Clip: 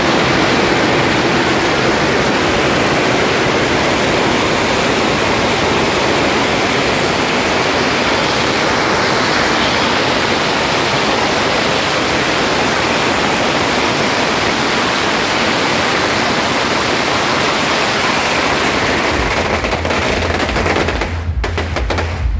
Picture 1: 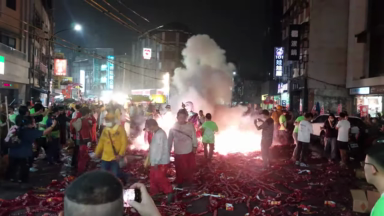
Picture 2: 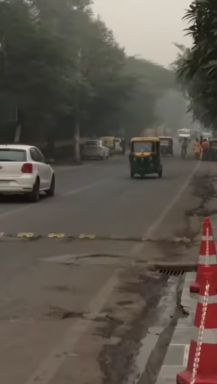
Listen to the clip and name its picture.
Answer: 1